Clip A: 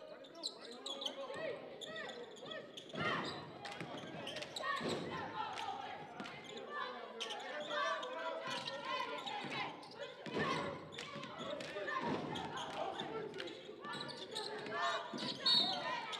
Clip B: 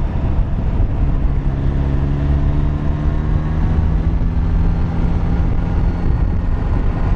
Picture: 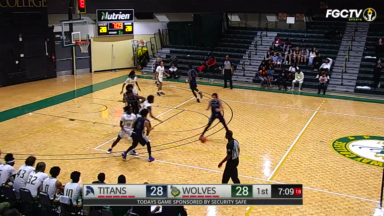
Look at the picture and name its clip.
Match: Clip A